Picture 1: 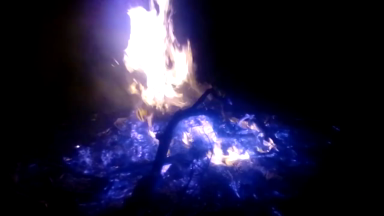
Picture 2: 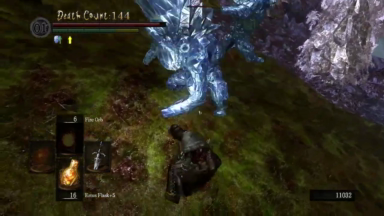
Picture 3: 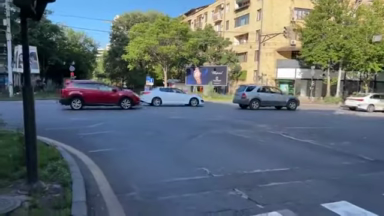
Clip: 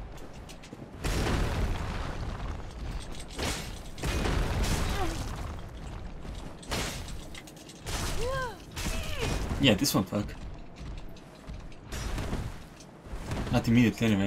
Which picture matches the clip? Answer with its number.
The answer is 2